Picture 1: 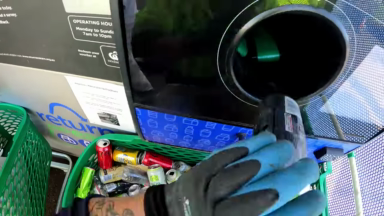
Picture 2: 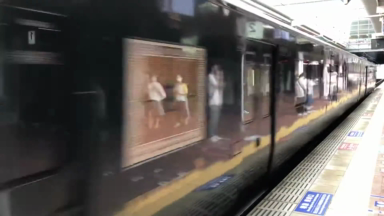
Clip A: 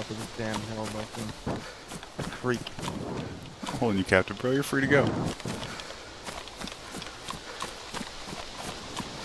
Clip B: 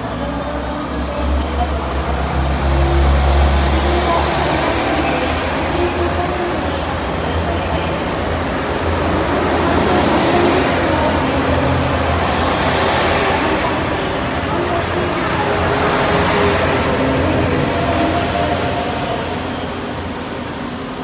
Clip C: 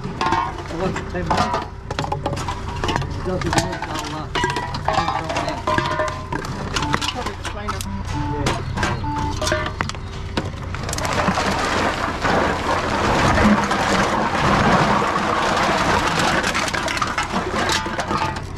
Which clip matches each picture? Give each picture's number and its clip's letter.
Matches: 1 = C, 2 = B